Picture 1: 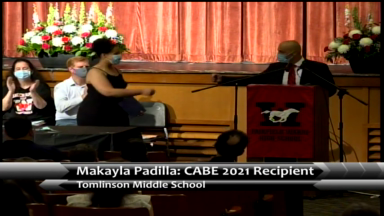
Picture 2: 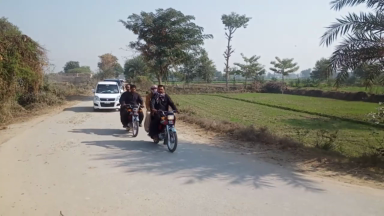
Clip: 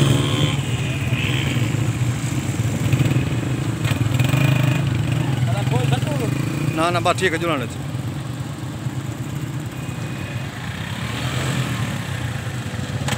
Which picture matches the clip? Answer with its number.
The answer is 2